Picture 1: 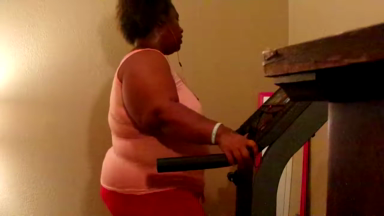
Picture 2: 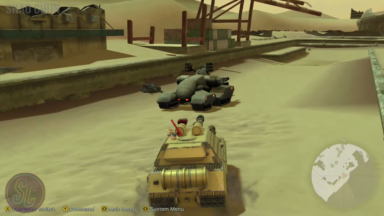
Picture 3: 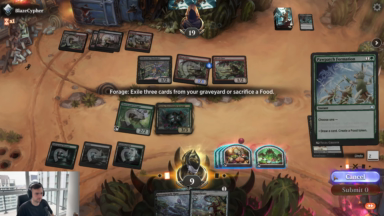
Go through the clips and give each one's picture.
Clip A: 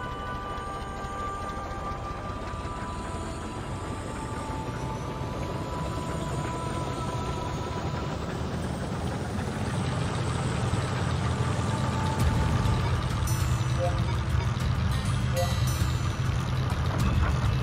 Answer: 2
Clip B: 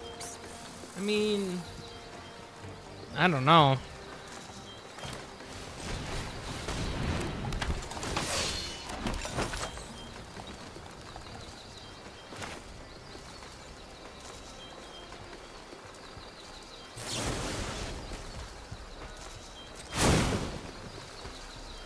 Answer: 3